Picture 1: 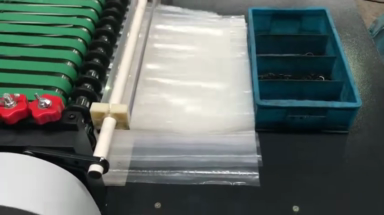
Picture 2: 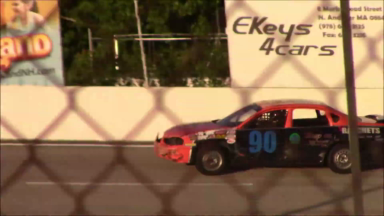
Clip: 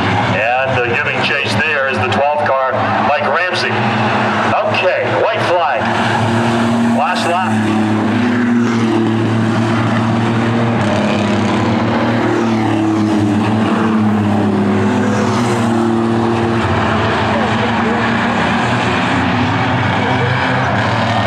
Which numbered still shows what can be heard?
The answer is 2